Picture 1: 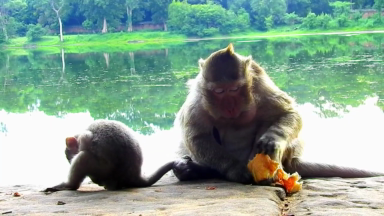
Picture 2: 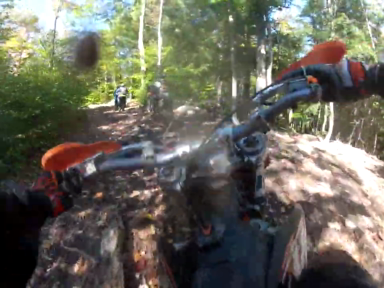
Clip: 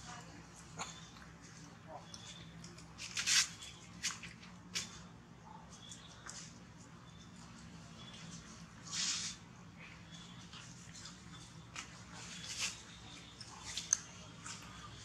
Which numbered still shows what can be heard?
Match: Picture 1